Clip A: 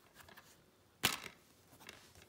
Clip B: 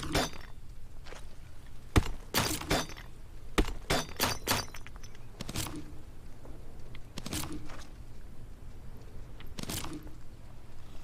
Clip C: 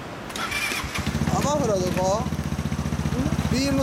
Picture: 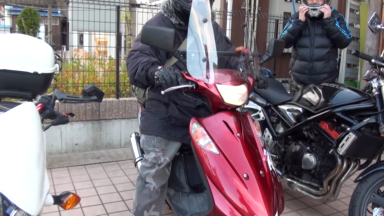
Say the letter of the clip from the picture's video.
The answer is C